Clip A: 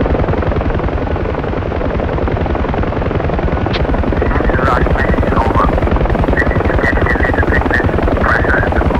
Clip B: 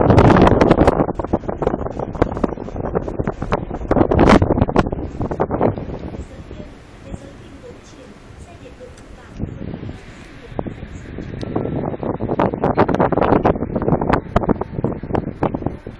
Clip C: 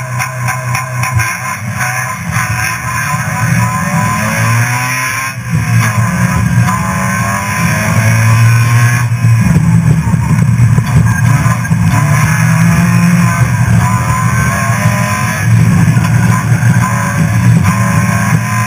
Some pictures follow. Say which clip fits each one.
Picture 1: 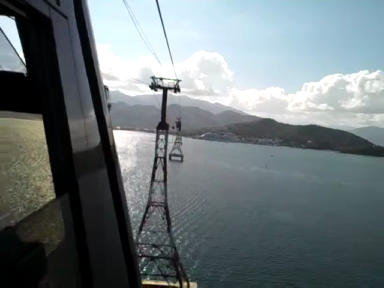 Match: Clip B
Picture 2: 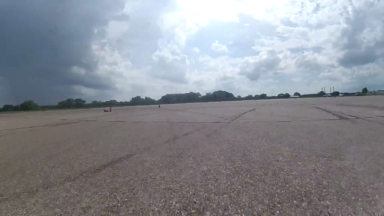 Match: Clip C